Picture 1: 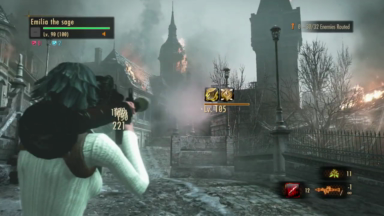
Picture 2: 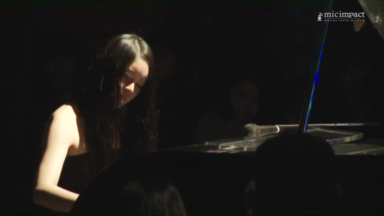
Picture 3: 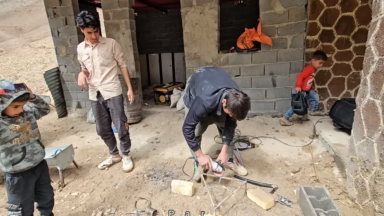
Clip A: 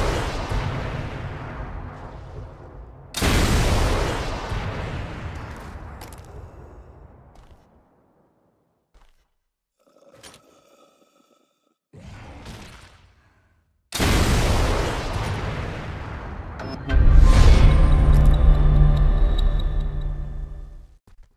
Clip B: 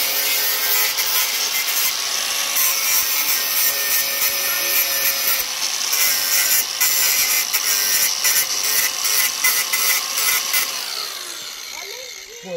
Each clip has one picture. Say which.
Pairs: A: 1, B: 3